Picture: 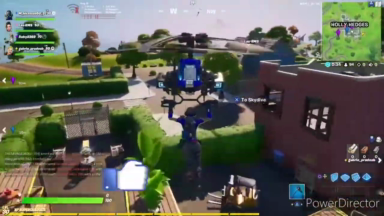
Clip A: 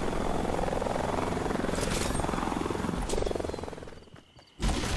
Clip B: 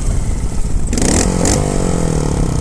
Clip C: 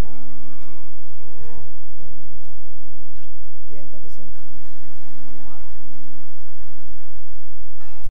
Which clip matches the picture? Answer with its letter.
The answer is A